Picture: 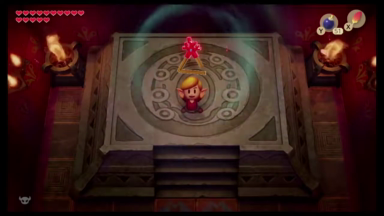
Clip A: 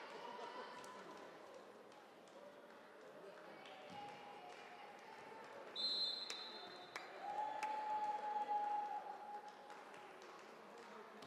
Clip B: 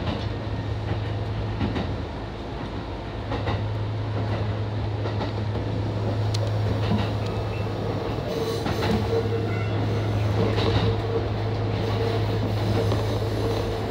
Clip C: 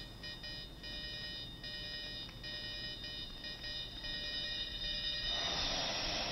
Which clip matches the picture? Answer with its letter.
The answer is C